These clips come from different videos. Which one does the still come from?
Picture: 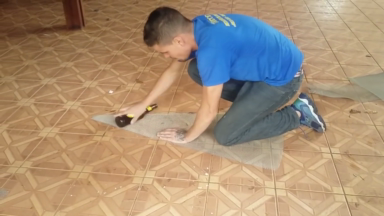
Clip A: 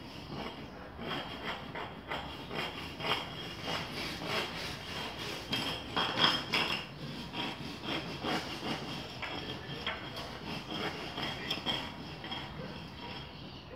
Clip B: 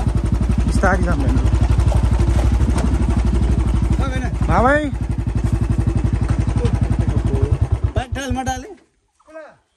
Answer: A